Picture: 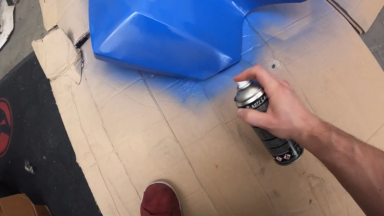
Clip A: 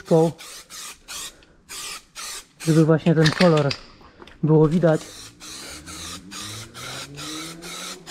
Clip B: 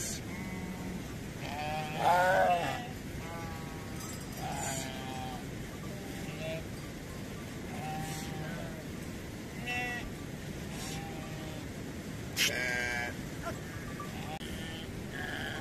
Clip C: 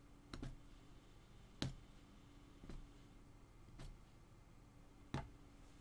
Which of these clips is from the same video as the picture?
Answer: A